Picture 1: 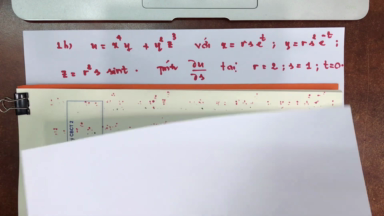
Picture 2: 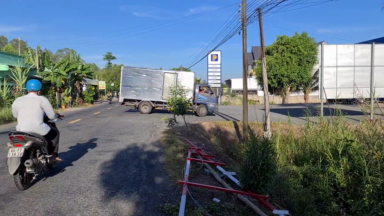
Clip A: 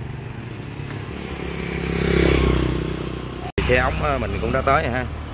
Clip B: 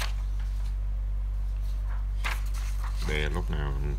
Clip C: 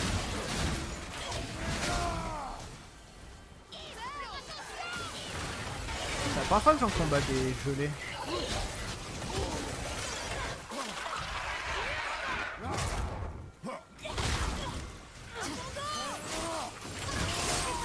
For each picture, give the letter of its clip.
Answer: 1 B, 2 A